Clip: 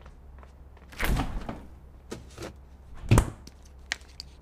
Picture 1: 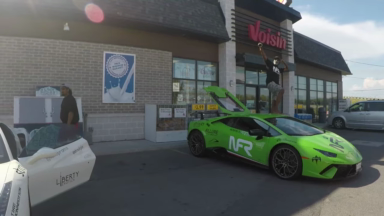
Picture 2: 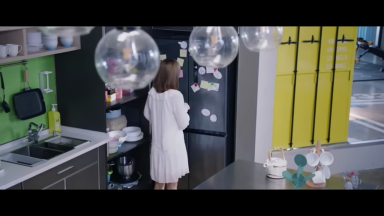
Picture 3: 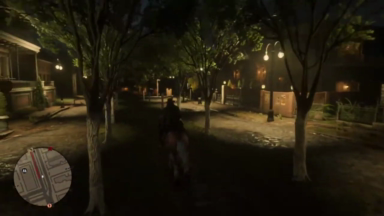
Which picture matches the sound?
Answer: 2